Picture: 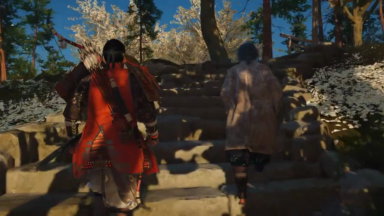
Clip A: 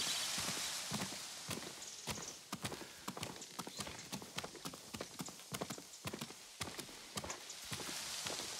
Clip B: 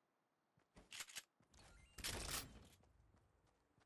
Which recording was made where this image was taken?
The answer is A